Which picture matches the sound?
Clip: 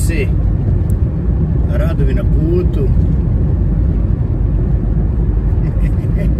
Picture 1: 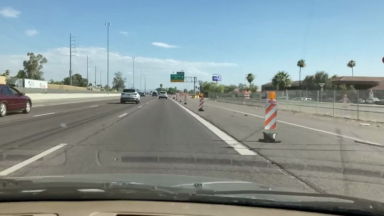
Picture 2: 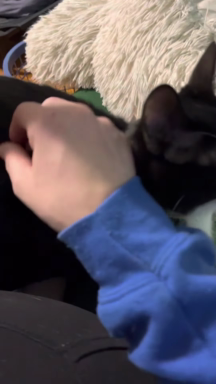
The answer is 1